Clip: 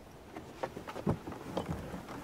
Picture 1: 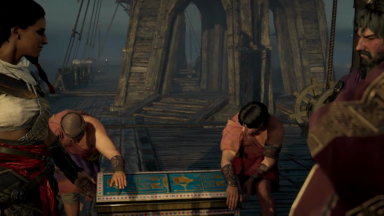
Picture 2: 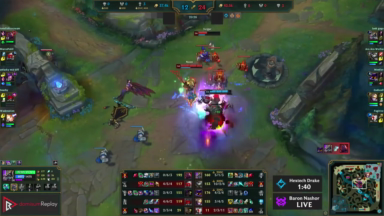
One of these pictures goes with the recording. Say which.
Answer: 1